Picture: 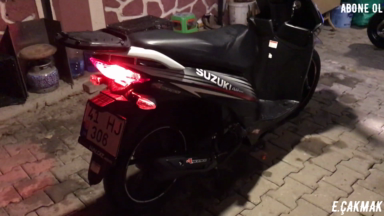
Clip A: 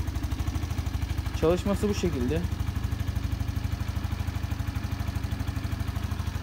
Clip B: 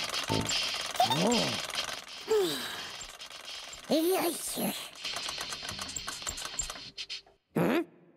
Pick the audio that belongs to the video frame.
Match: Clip A